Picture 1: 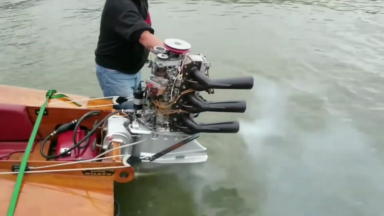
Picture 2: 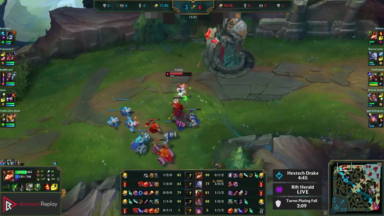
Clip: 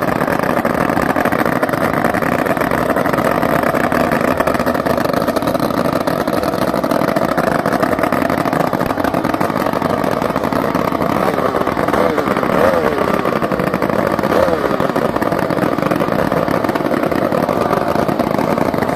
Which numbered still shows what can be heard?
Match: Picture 1